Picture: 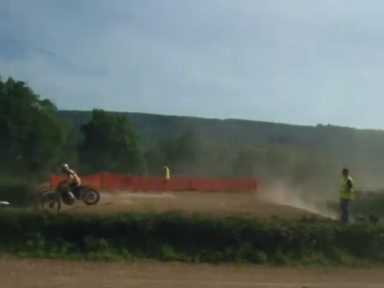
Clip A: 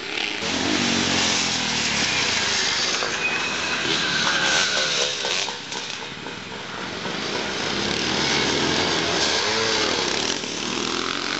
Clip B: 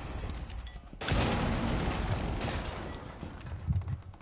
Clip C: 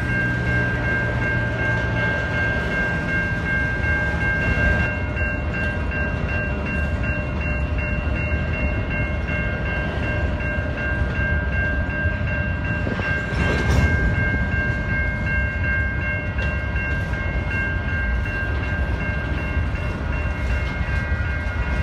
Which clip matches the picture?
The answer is A